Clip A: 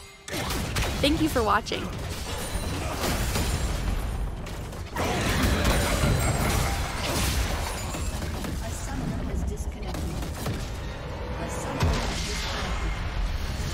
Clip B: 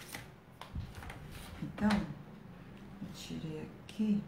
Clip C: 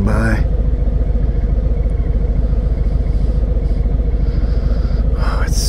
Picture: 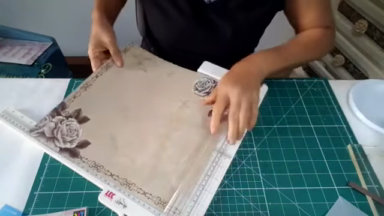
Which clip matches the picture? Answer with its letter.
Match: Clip B